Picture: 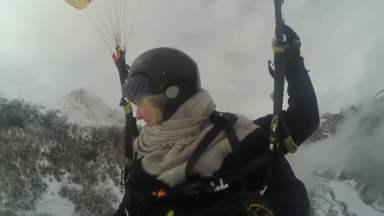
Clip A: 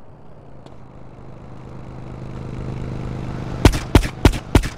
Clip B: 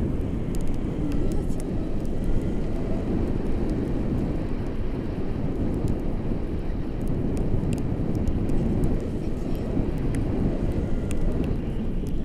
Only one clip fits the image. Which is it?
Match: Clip B